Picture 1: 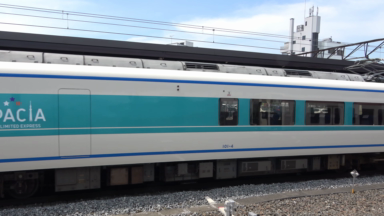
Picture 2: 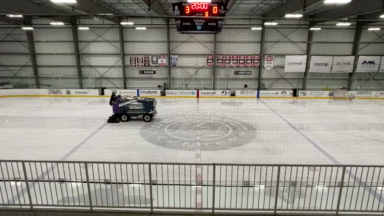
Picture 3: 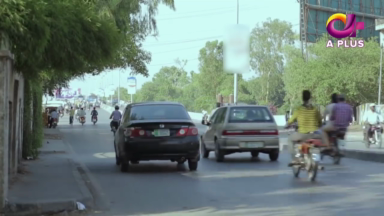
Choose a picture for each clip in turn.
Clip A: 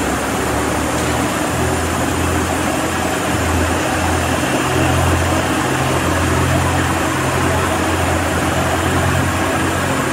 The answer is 2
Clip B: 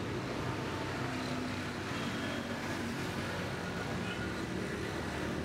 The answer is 3